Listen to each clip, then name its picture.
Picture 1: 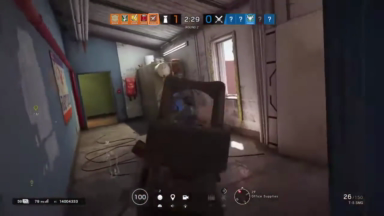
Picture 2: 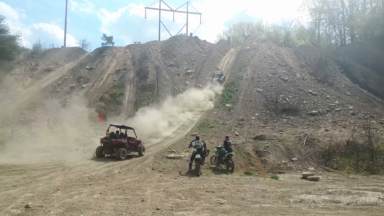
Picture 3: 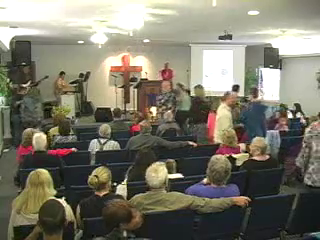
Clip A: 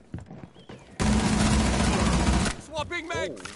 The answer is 1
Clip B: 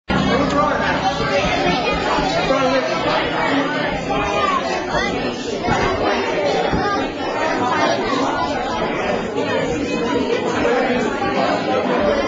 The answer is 3